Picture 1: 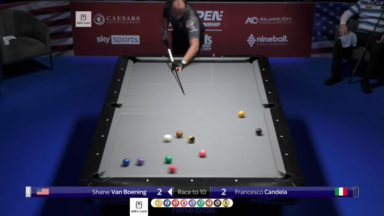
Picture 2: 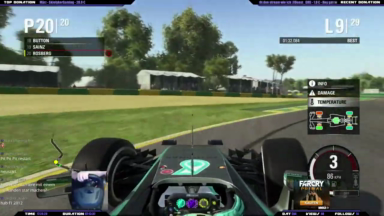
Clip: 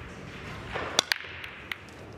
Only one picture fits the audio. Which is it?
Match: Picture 1